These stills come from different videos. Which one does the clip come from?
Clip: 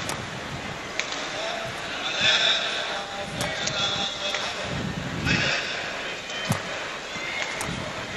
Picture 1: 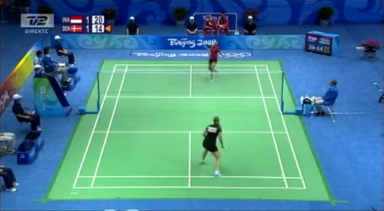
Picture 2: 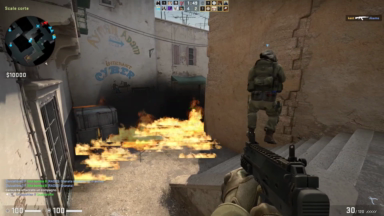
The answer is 1